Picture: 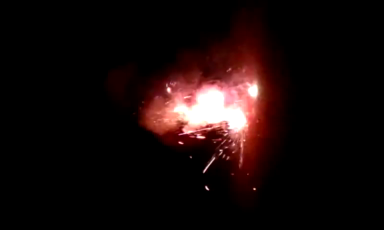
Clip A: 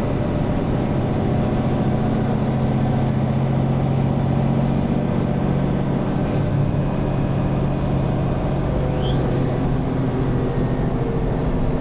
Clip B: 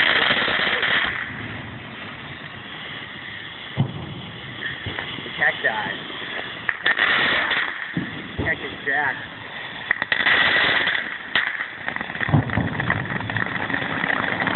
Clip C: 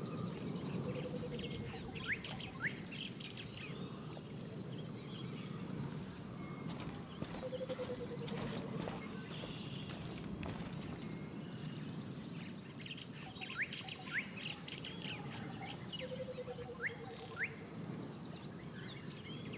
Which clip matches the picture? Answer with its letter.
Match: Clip B